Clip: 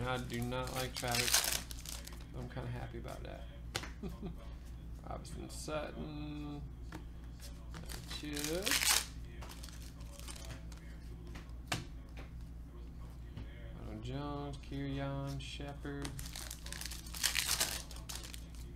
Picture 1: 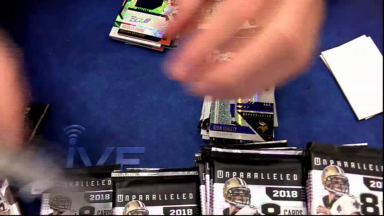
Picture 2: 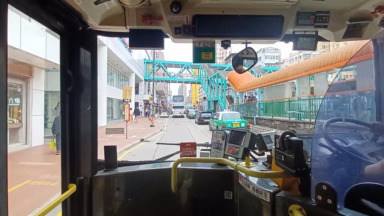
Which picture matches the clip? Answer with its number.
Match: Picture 1